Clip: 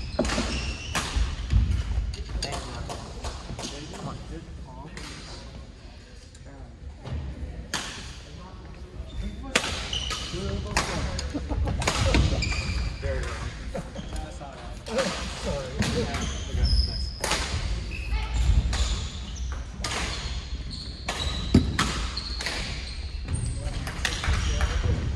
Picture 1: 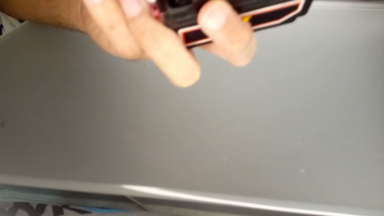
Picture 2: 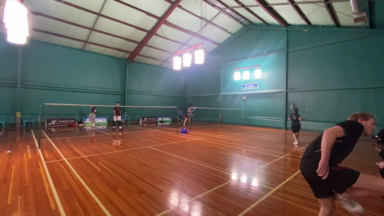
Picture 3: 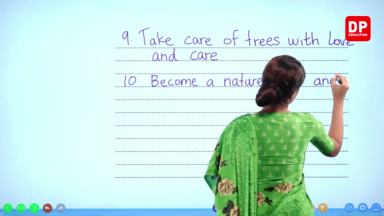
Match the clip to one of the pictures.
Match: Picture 2